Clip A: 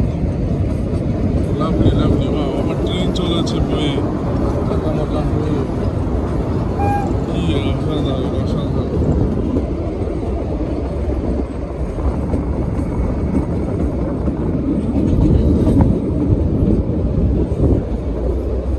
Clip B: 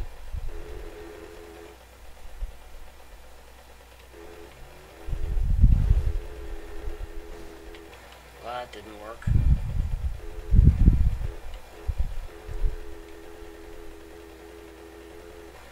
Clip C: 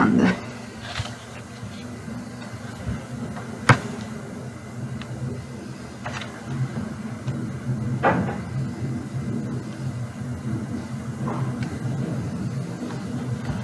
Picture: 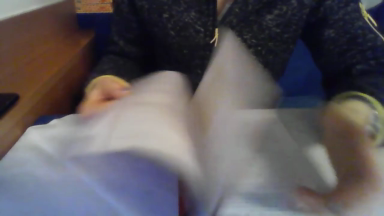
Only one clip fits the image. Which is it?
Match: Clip C